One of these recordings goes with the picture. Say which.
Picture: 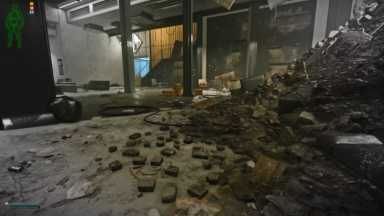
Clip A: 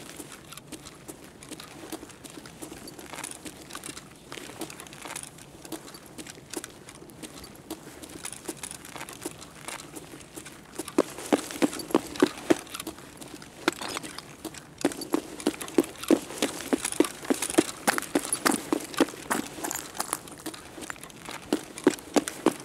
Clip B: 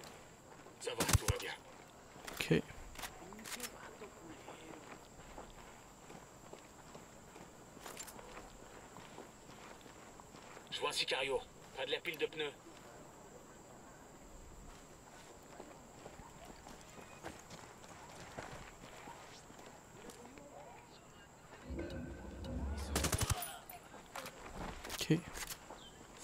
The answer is A